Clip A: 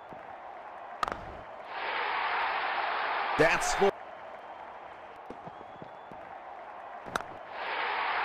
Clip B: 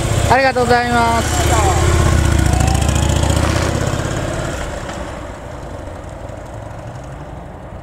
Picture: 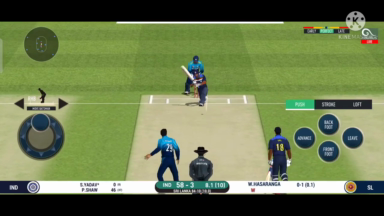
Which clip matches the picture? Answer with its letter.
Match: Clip A